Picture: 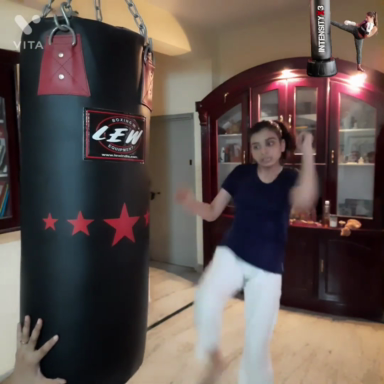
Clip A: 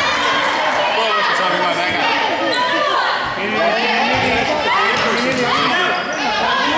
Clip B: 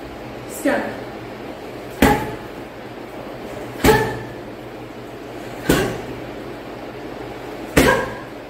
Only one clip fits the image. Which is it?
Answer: B